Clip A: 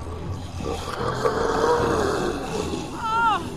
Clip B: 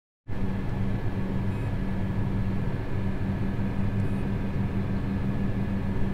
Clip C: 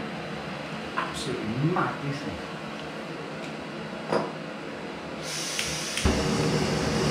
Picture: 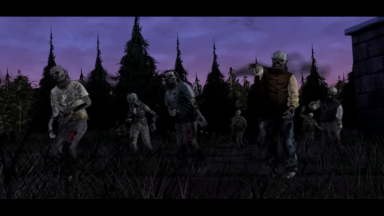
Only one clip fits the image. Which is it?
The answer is A